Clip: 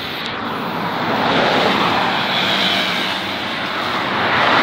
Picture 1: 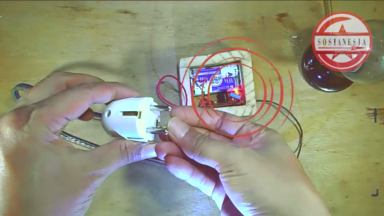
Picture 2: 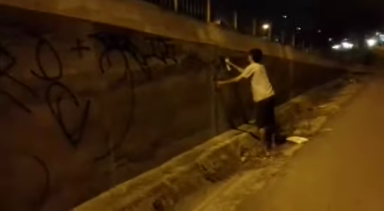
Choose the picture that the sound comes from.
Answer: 2